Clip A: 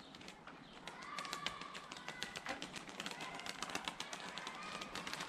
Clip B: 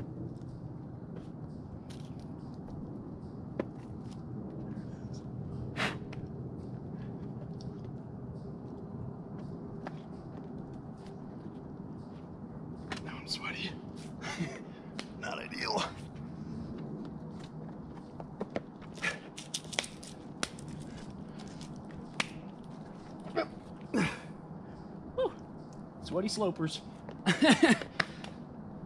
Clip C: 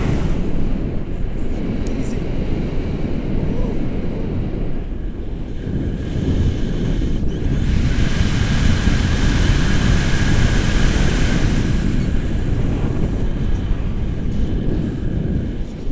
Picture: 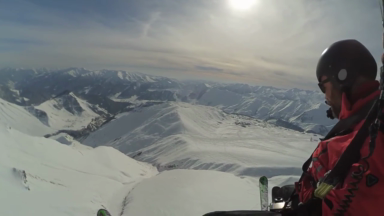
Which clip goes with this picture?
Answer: C